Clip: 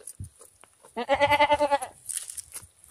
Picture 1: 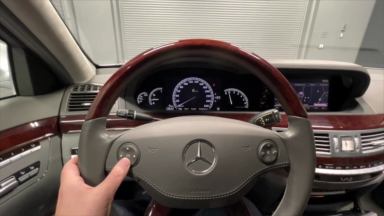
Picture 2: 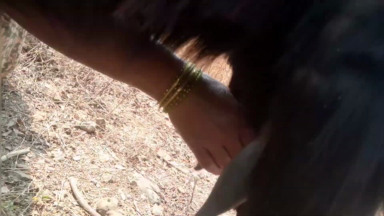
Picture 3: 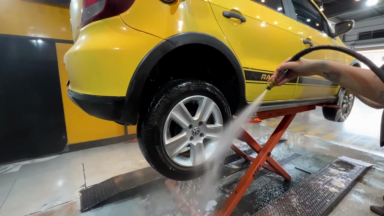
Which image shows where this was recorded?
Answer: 2